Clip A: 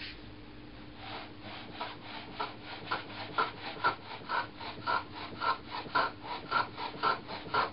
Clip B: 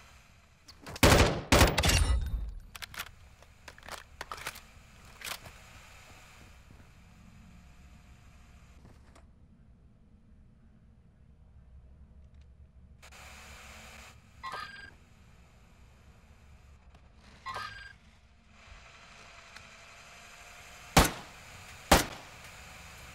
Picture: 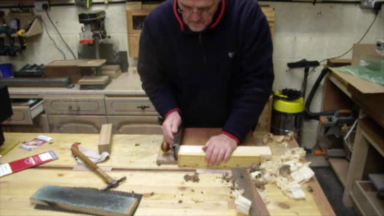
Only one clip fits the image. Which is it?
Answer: A